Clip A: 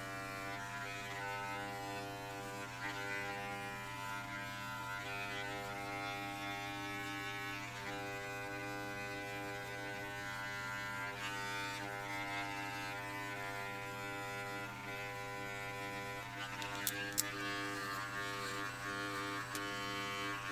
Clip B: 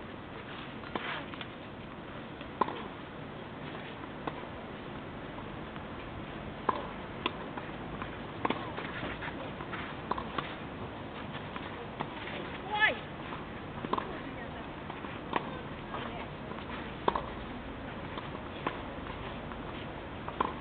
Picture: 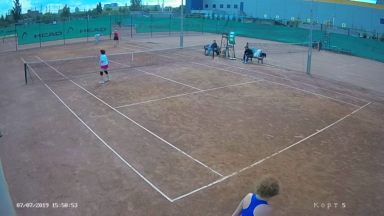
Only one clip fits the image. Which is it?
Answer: B